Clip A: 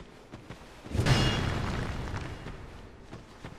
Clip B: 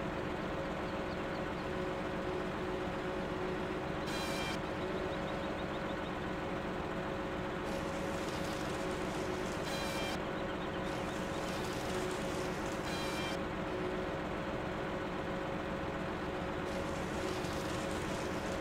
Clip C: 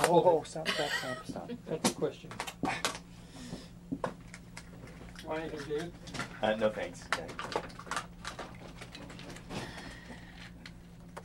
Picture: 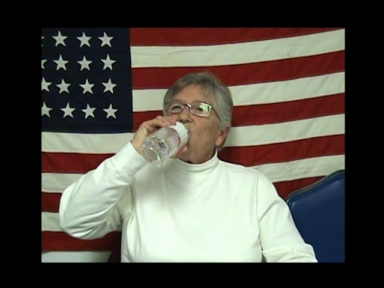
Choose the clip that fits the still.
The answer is C